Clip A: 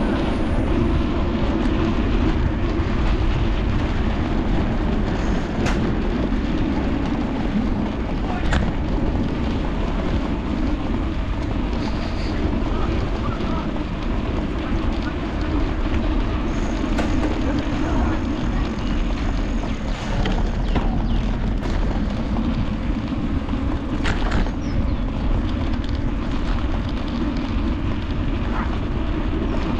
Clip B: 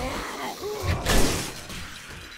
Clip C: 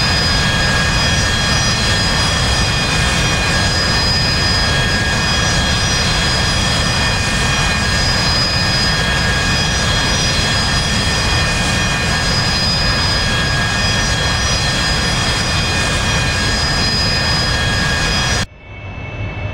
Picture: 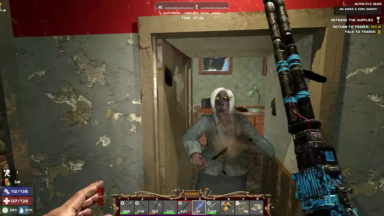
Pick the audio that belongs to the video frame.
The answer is B